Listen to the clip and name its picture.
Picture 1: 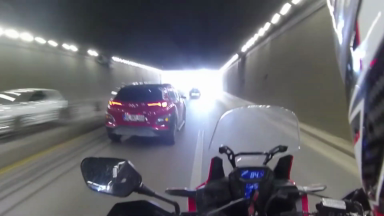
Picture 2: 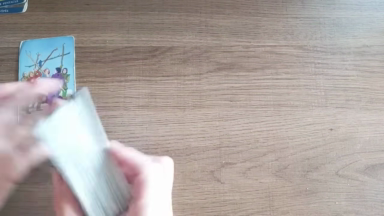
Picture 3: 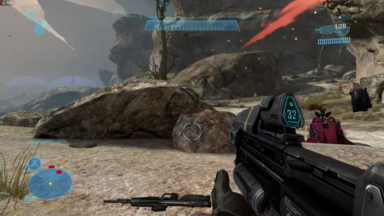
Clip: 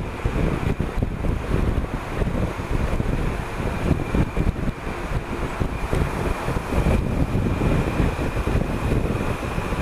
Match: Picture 1